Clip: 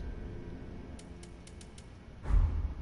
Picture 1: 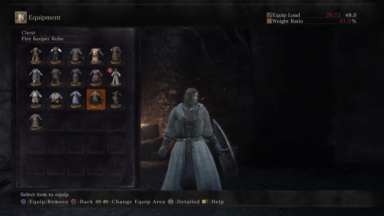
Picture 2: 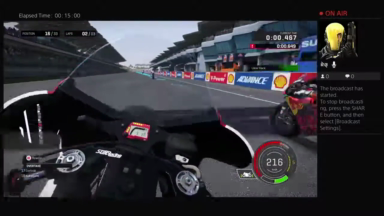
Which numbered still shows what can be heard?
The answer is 1